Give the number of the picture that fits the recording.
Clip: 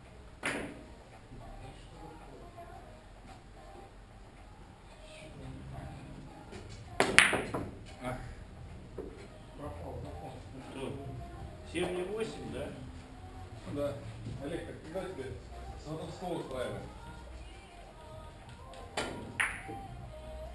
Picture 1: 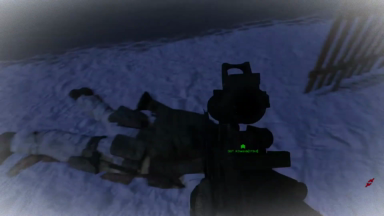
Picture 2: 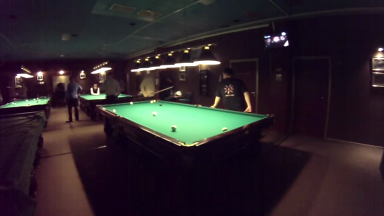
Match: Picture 2